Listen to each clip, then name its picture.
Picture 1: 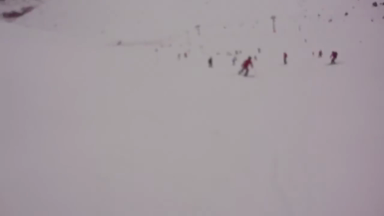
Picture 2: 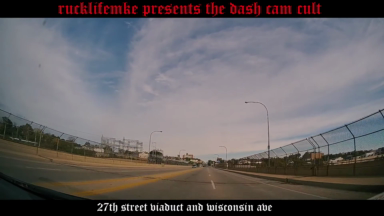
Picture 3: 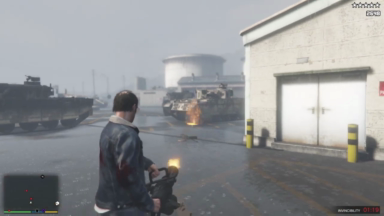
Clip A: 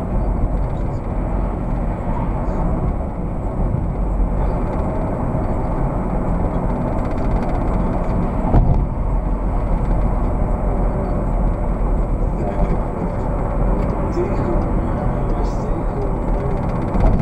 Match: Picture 2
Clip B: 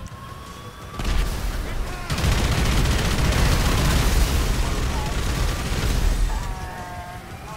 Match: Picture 3